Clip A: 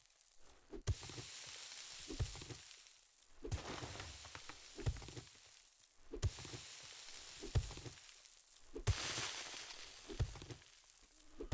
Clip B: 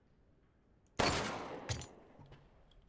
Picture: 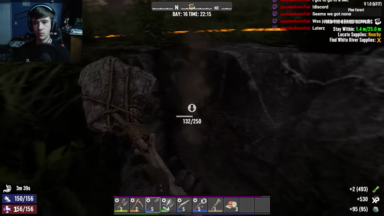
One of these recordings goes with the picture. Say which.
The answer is A